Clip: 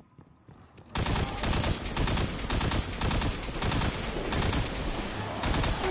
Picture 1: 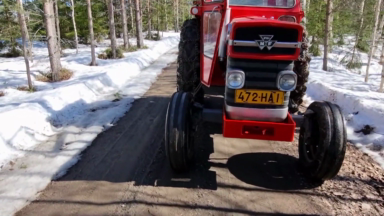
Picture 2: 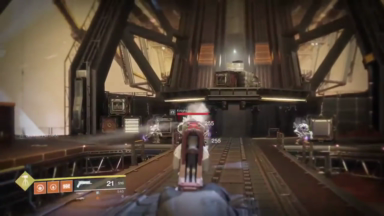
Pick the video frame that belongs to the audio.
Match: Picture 2